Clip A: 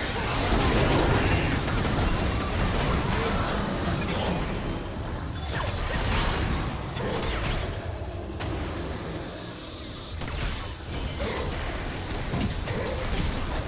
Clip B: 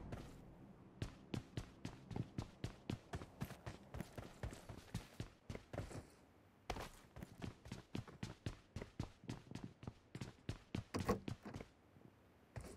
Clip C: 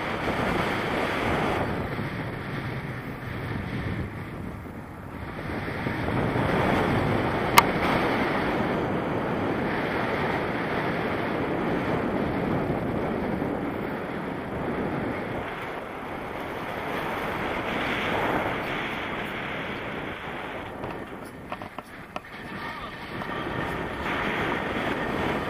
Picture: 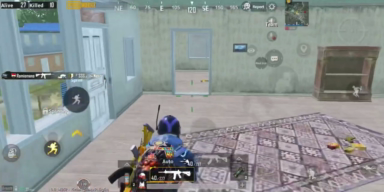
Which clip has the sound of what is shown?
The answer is B